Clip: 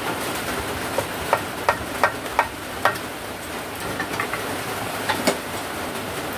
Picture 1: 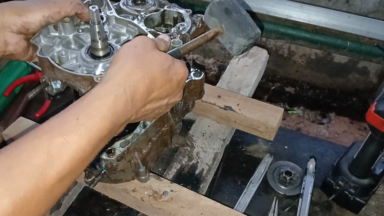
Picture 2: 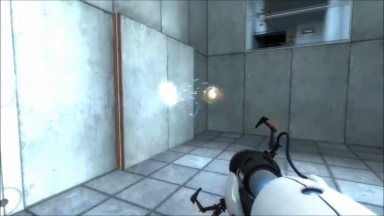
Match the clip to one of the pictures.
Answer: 1